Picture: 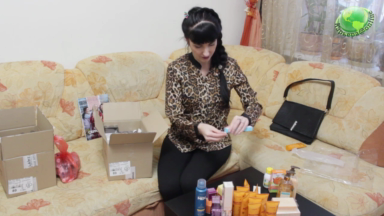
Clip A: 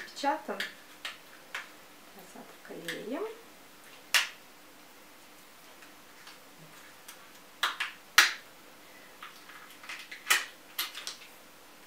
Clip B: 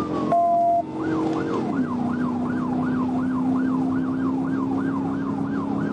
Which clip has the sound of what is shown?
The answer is A